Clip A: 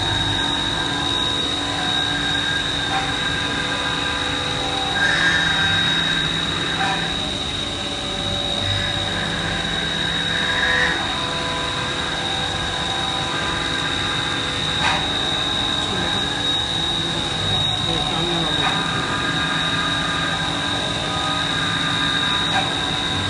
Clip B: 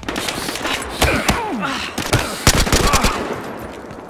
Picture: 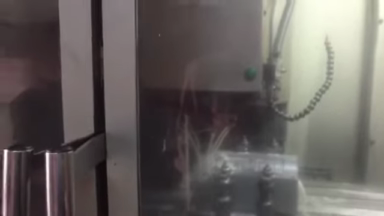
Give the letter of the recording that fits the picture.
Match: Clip A